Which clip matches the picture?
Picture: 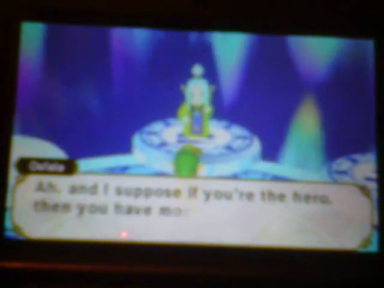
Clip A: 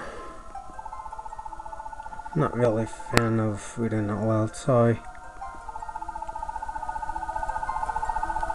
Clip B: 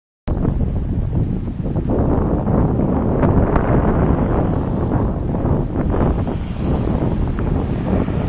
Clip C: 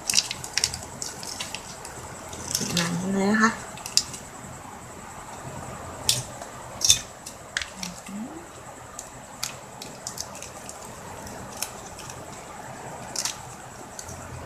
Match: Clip A